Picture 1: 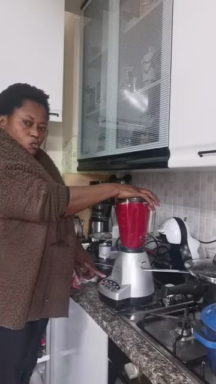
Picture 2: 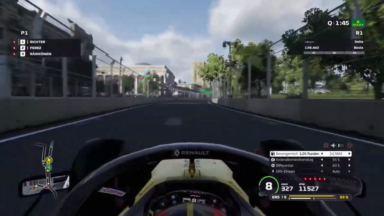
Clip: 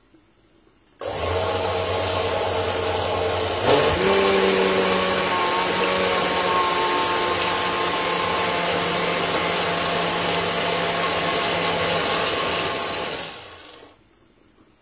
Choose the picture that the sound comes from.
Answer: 1